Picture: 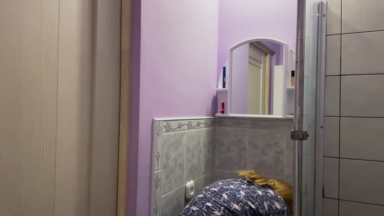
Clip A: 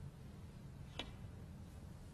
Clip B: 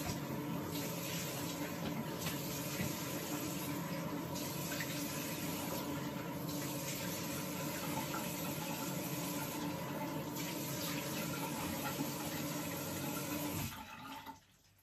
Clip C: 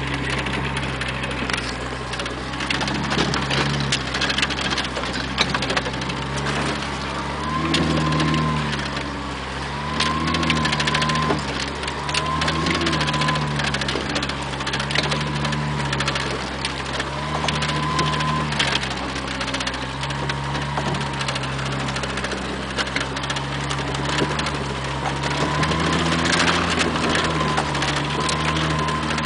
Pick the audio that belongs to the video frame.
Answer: B